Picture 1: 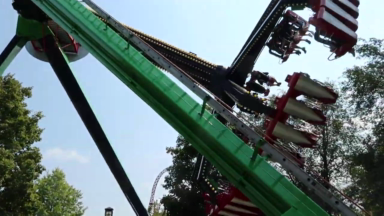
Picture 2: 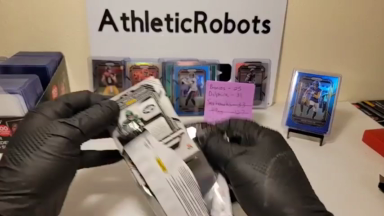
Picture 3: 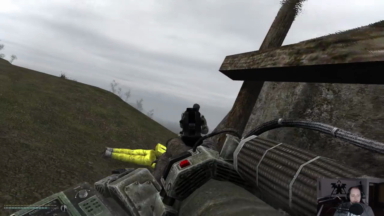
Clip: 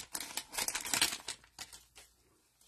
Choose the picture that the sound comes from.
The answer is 2